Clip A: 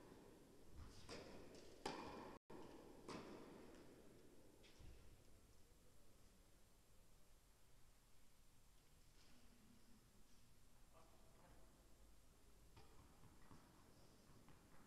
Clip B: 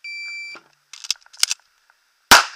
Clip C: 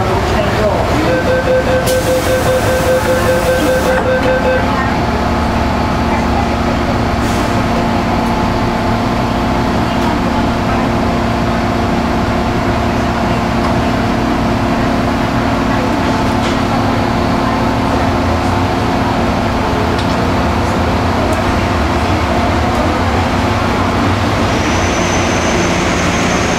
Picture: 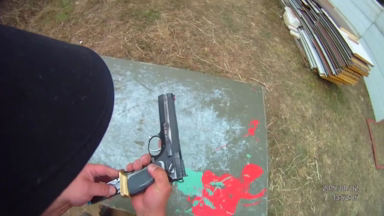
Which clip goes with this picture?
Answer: B